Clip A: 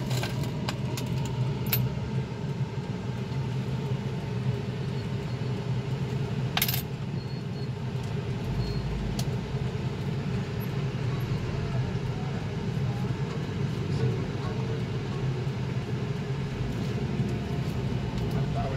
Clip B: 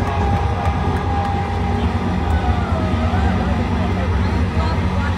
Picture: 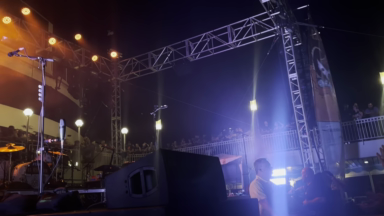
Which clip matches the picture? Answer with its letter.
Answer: B